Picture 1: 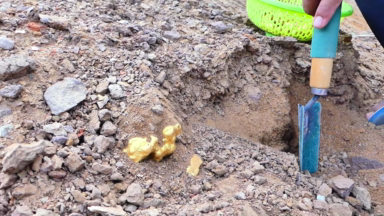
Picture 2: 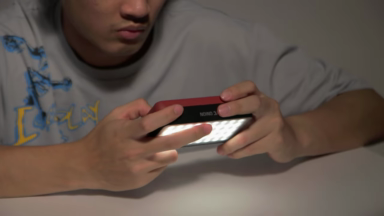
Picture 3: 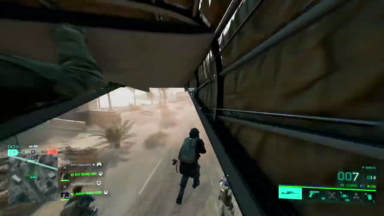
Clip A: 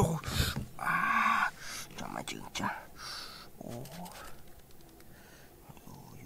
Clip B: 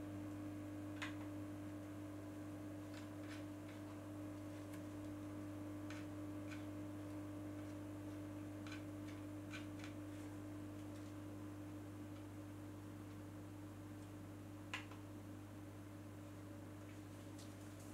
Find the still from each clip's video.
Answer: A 1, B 2